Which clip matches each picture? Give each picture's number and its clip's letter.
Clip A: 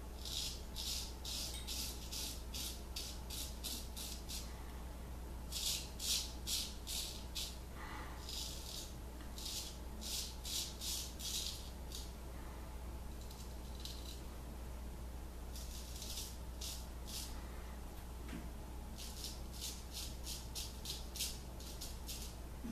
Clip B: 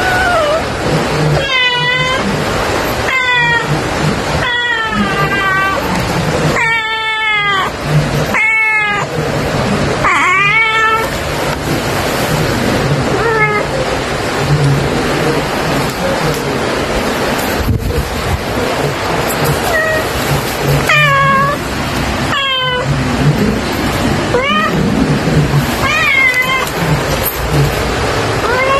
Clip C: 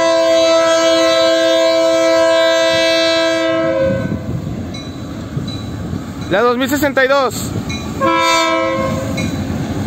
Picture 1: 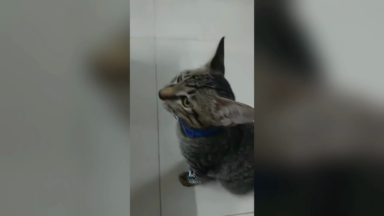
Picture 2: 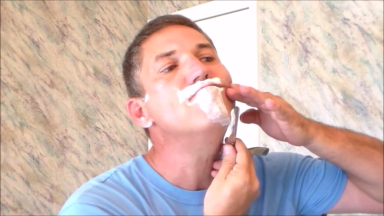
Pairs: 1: B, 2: A